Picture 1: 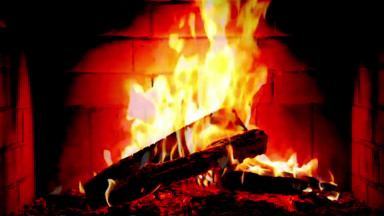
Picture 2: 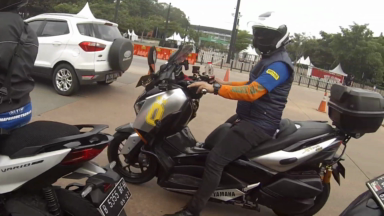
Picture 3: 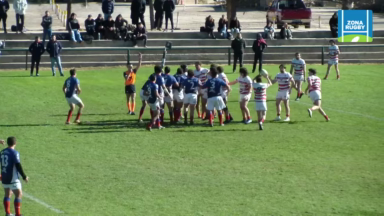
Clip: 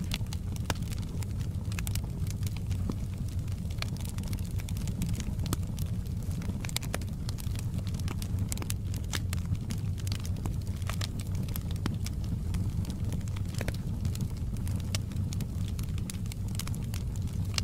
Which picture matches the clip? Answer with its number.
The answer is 1